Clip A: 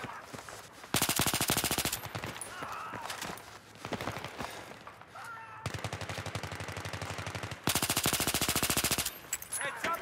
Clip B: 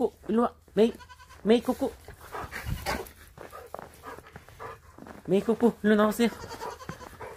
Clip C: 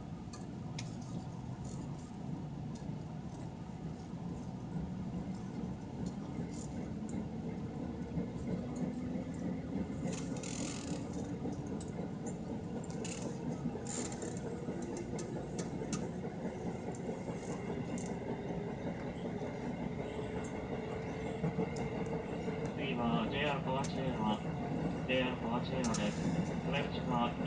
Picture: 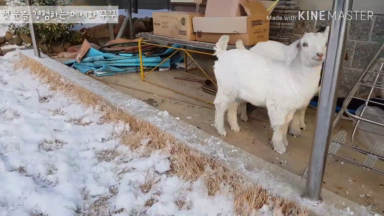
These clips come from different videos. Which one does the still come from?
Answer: B